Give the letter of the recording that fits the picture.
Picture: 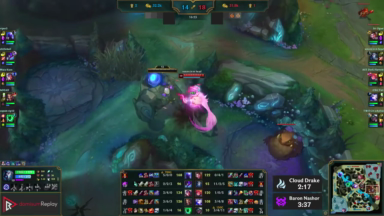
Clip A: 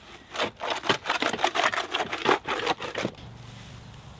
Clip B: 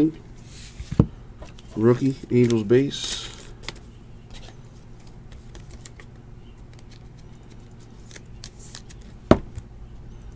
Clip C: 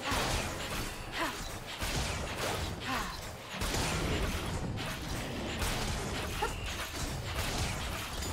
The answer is C